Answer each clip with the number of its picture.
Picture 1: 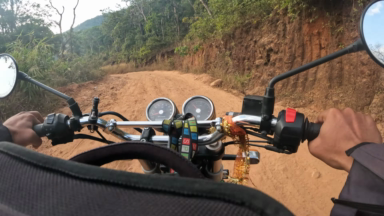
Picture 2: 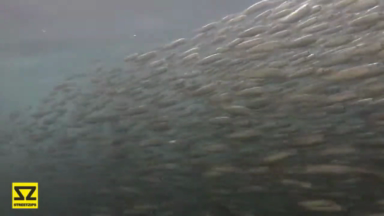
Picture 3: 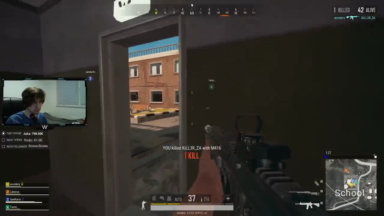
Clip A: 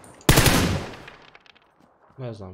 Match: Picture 3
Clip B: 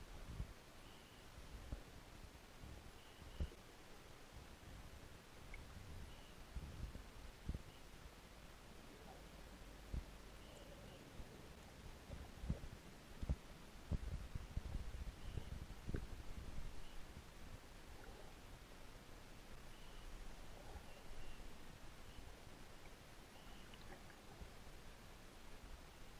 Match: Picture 2